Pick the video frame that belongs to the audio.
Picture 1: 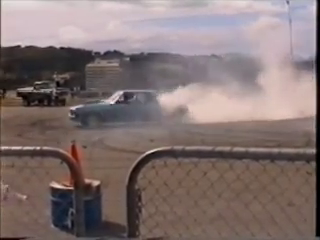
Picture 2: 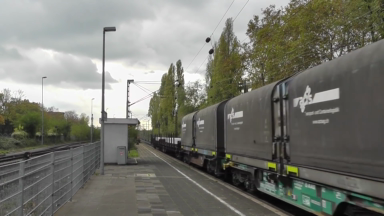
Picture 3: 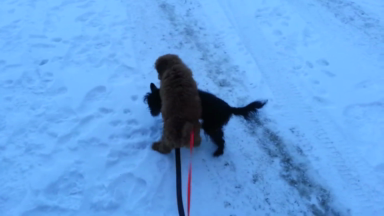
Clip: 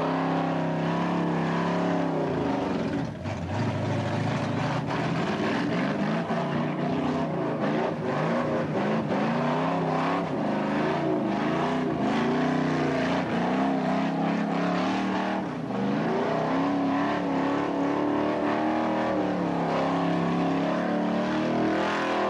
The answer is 1